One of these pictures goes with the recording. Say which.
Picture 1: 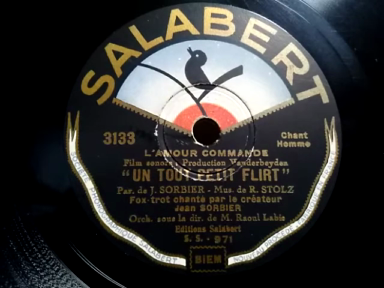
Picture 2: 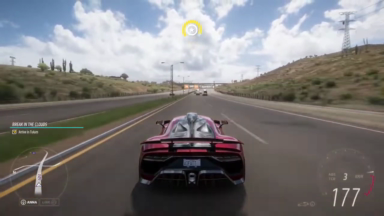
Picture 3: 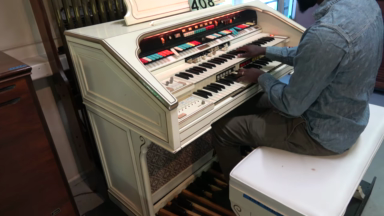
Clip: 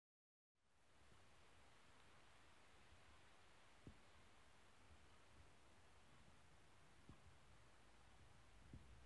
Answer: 1